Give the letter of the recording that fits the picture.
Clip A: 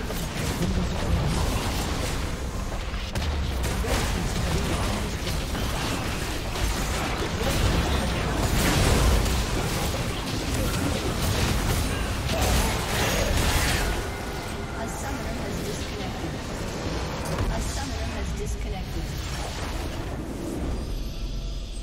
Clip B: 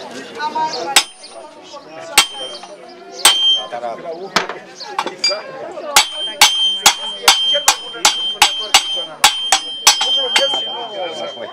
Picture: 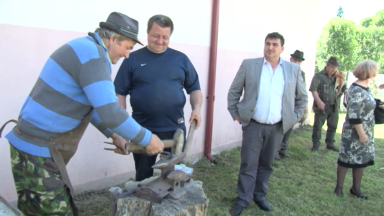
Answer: B